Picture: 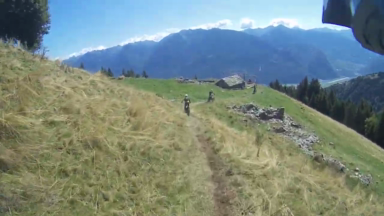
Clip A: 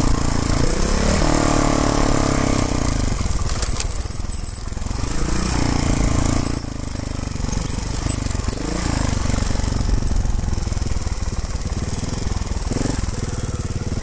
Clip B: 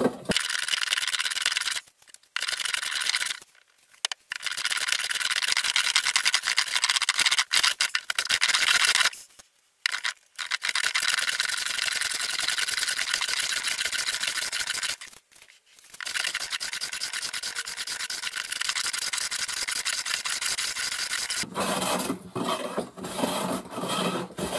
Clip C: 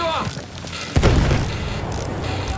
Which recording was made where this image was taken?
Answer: A